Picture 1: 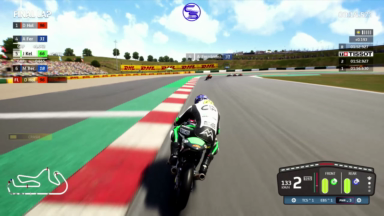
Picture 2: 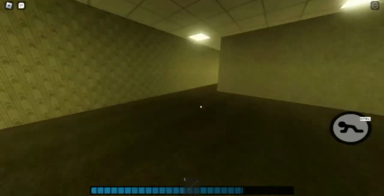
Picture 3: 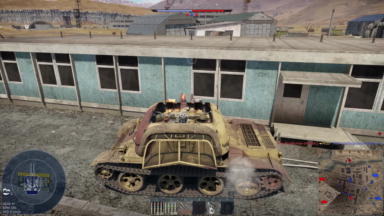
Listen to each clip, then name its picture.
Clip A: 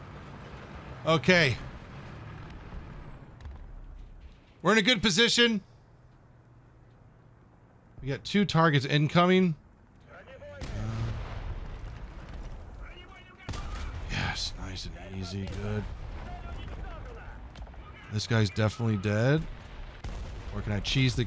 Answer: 3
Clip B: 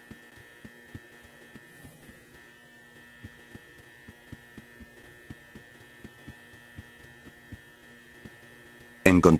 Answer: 2